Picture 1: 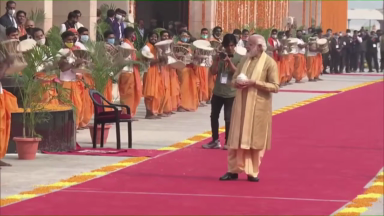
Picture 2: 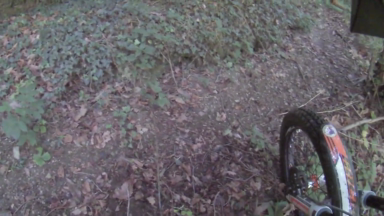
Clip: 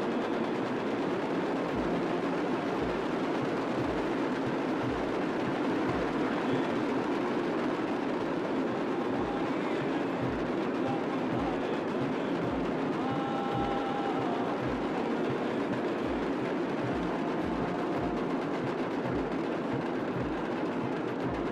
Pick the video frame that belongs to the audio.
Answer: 1